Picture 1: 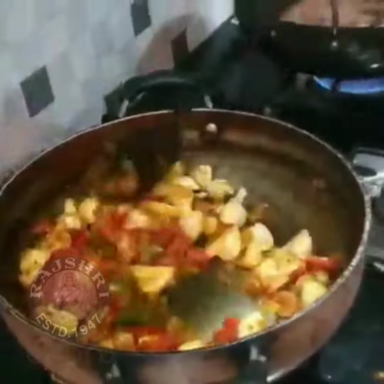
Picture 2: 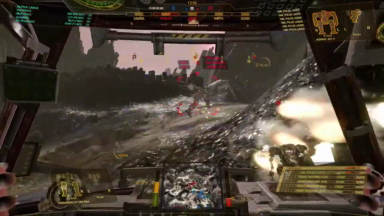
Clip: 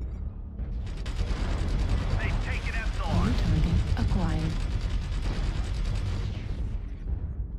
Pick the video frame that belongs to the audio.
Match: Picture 2